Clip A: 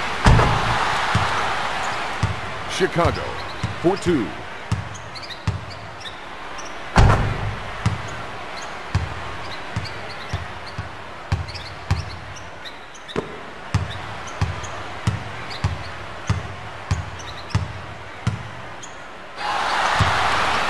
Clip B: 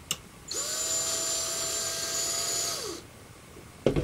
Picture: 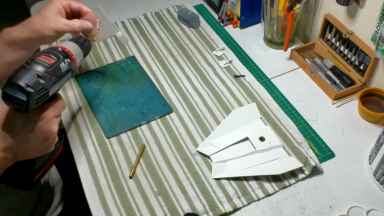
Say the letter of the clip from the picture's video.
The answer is B